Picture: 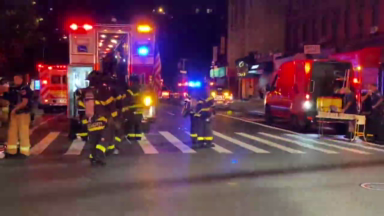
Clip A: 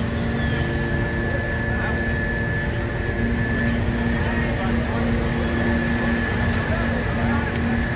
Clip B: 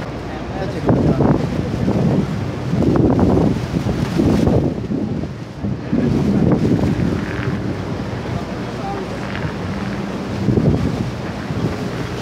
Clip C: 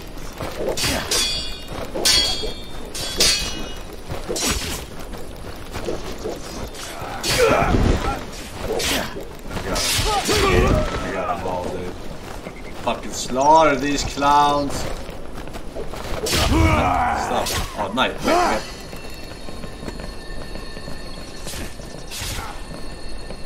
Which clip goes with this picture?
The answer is A